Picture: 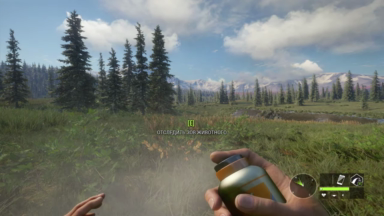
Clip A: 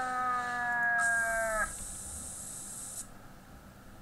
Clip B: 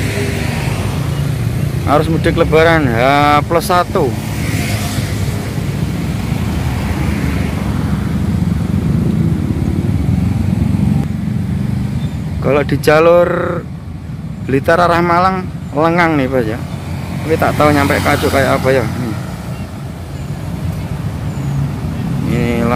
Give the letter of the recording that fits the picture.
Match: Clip A